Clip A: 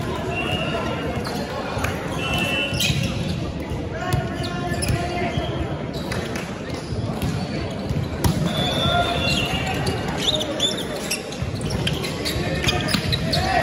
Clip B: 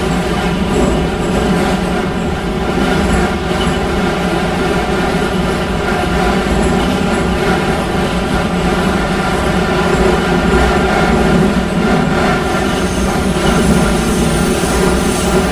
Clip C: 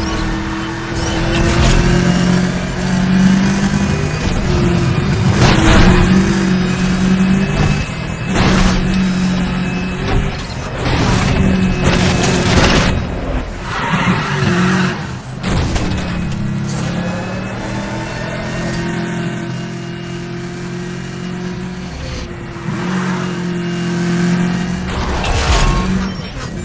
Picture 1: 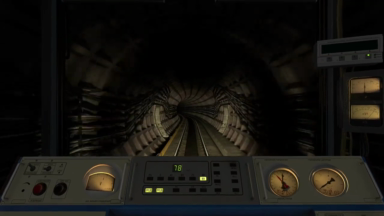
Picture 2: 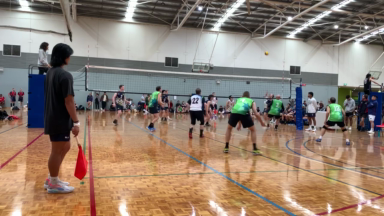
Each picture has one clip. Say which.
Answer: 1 B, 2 A